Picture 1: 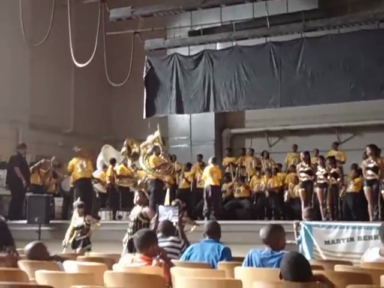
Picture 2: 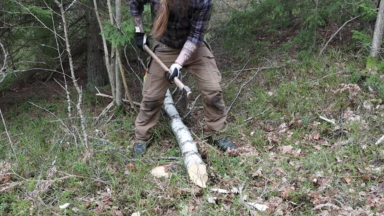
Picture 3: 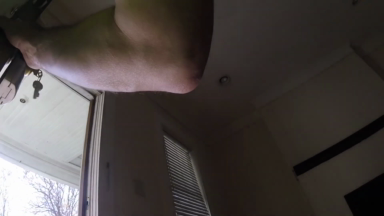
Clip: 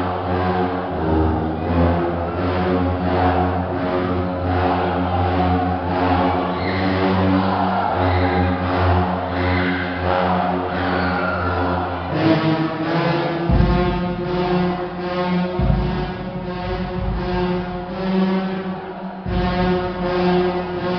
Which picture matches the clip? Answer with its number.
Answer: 1